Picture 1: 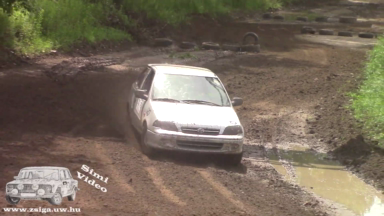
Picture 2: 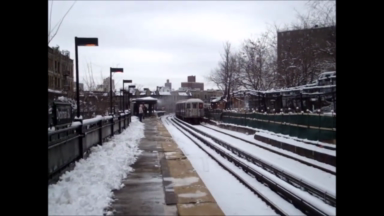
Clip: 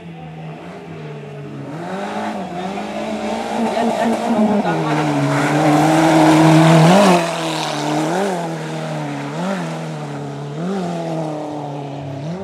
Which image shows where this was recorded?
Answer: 1